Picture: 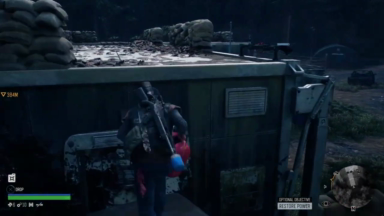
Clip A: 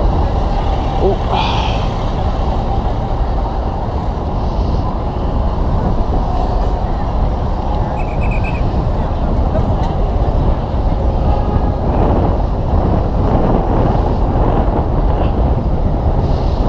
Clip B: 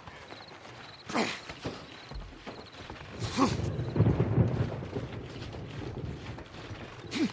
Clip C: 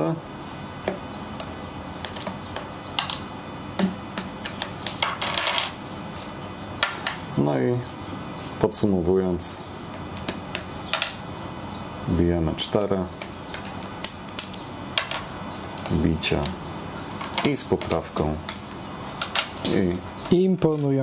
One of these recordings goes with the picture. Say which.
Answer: B